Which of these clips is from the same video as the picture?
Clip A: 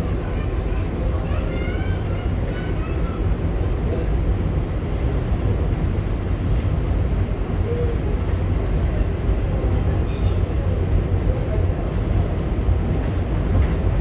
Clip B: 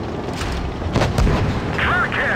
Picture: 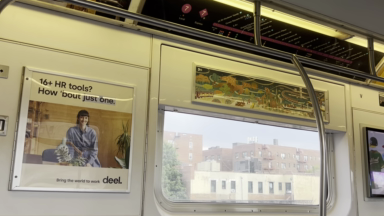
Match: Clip A